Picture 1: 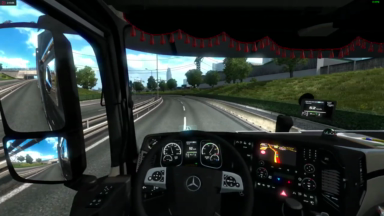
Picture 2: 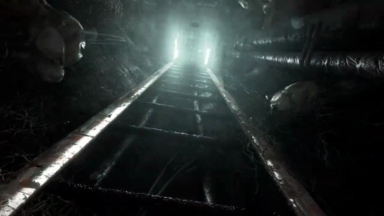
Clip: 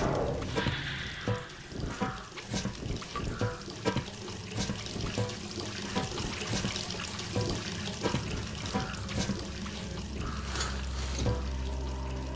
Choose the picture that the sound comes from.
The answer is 2